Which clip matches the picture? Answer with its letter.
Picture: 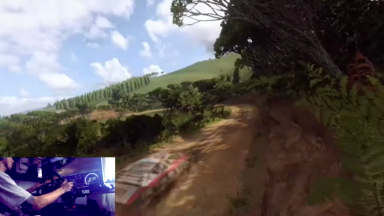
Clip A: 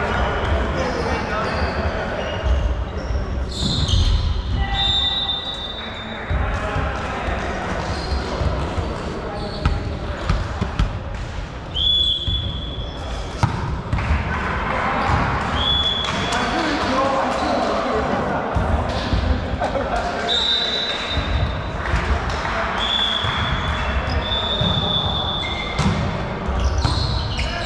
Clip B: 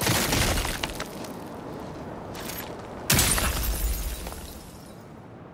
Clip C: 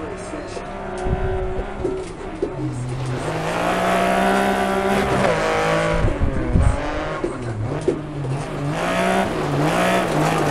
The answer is C